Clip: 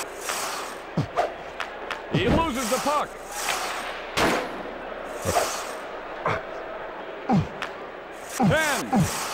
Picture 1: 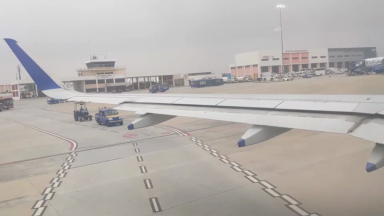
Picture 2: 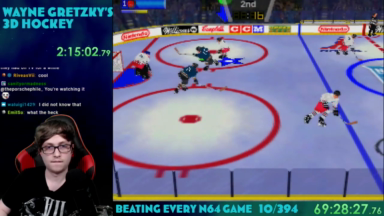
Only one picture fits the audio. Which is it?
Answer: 2